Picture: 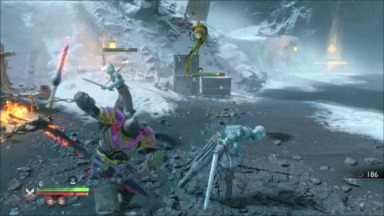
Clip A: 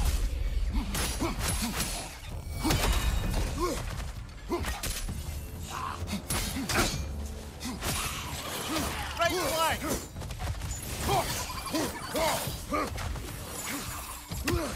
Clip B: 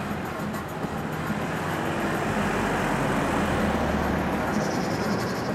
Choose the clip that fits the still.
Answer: A